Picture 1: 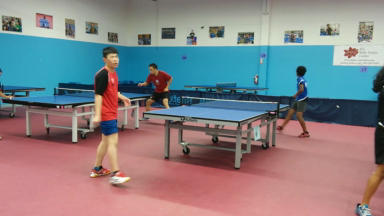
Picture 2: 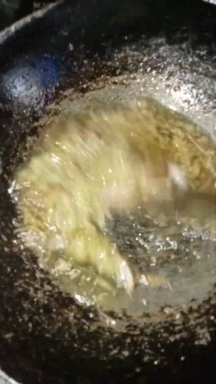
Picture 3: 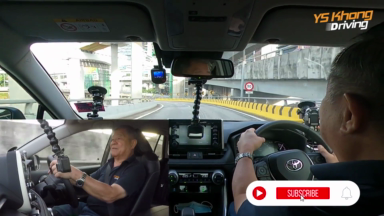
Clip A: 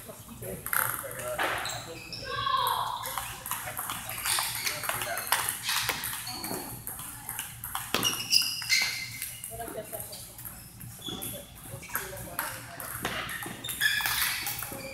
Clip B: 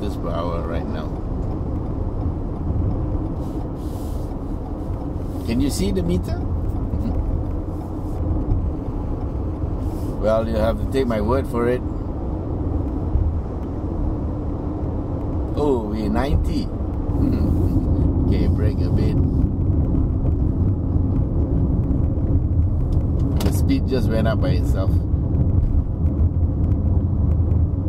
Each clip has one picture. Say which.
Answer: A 1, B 3